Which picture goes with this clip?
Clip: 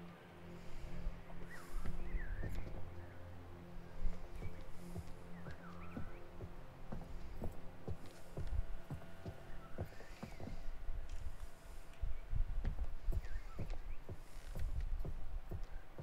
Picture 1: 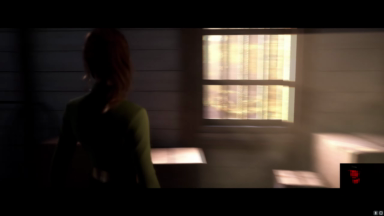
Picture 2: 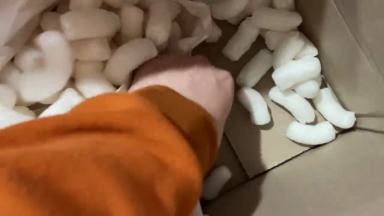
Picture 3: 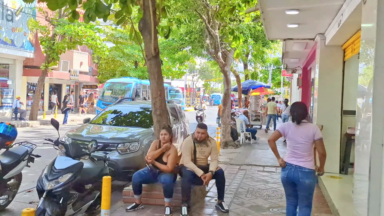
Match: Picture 1